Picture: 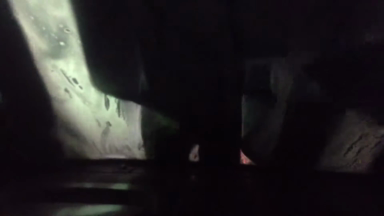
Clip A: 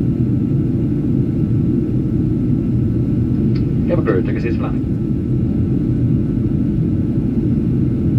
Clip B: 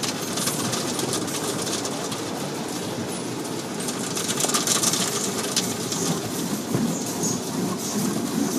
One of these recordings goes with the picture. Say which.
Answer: B